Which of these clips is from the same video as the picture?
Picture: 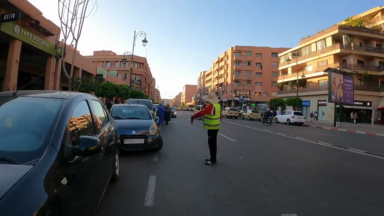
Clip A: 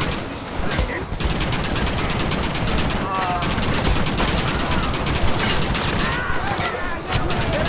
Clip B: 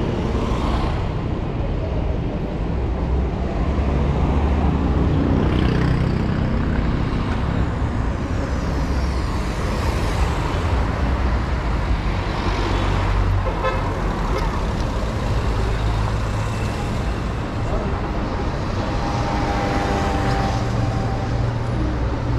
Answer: B